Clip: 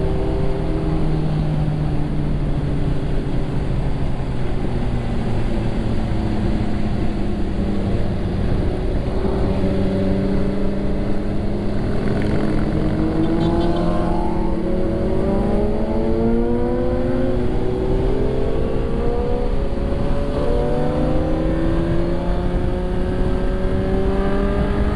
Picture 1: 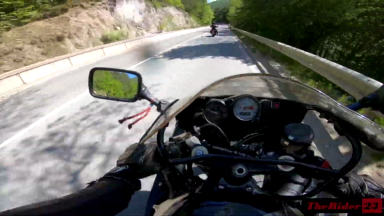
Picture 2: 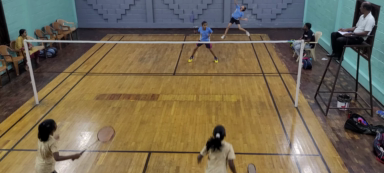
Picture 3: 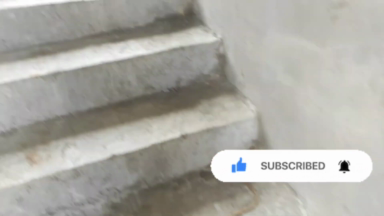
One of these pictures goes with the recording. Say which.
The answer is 1